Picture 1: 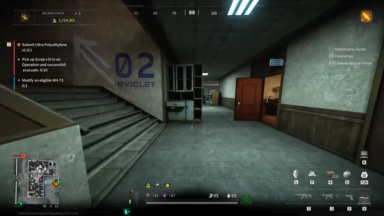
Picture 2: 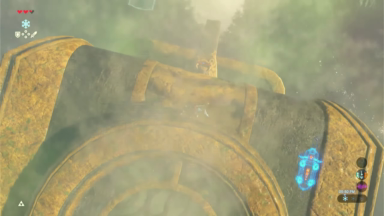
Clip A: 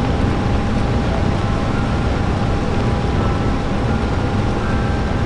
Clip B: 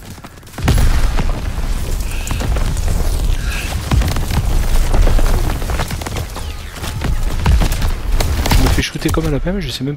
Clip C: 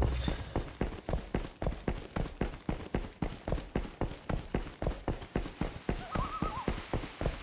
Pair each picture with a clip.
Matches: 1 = C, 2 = A